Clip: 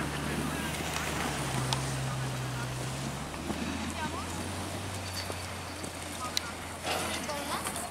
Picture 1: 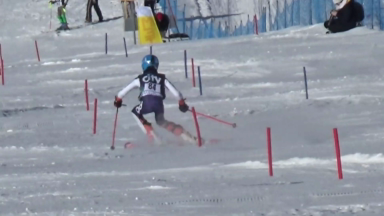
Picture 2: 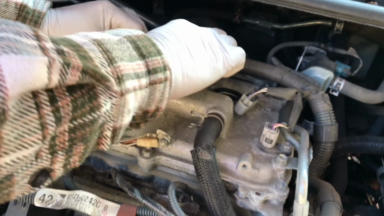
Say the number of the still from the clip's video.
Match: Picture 1